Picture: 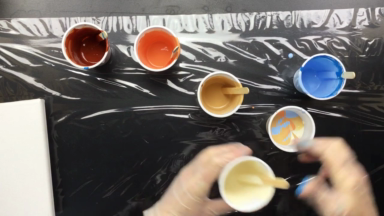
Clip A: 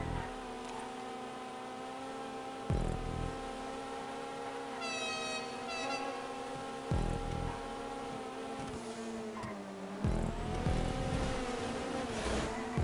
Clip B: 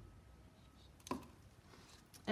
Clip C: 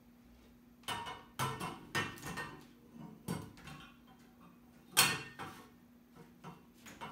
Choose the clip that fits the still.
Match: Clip B